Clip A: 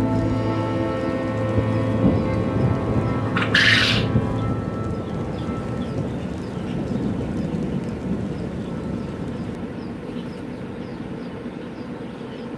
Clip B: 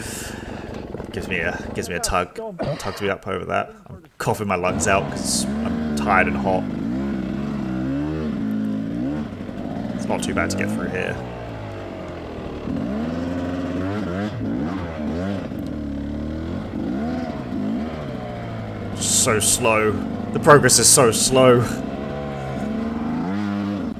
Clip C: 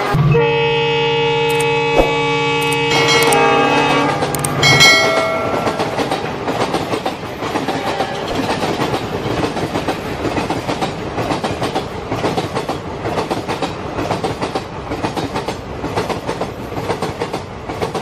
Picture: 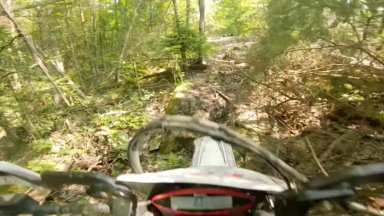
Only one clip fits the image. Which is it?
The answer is B